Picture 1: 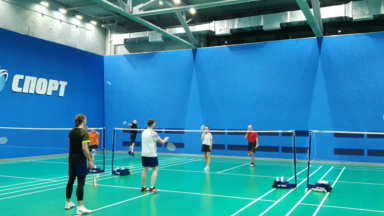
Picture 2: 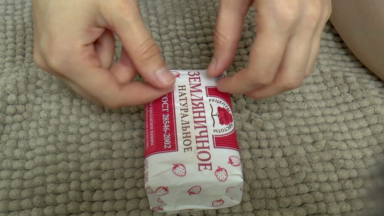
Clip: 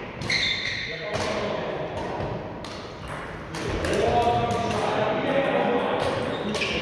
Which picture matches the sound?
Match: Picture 1